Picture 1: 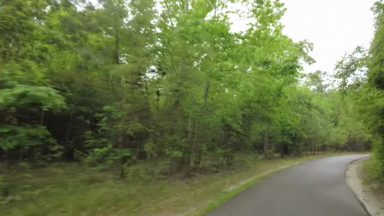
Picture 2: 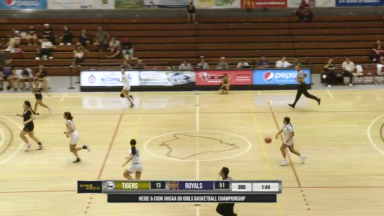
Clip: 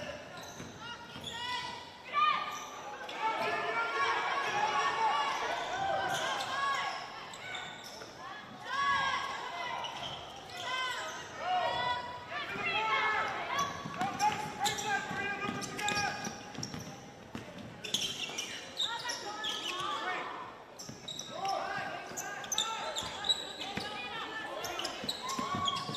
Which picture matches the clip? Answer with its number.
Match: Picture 2